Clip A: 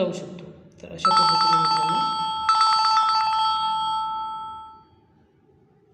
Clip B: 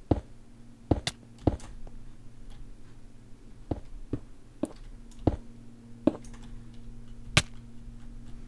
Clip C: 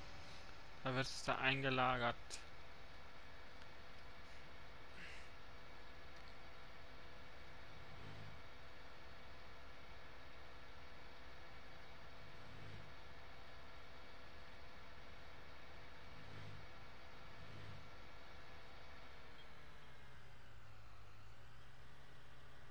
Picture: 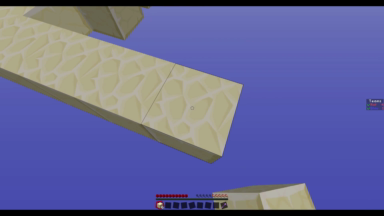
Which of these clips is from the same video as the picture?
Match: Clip B